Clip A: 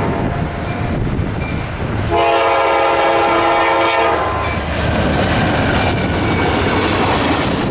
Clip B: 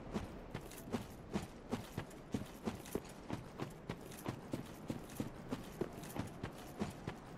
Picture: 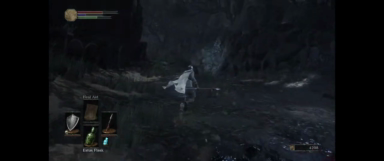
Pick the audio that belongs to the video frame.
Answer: B